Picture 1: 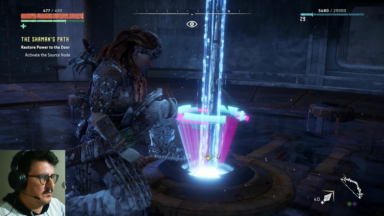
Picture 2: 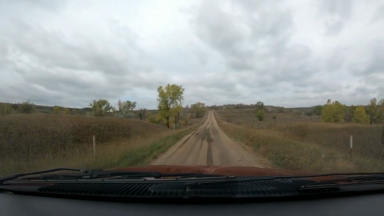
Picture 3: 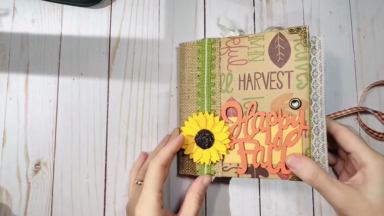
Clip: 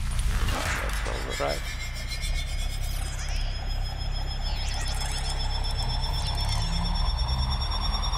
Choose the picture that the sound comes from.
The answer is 1